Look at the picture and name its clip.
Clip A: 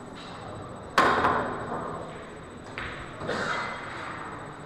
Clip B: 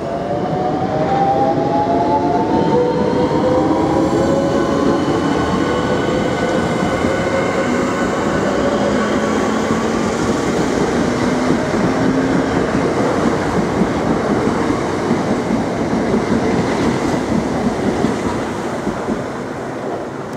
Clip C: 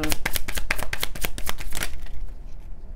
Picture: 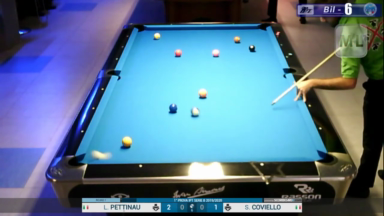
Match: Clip A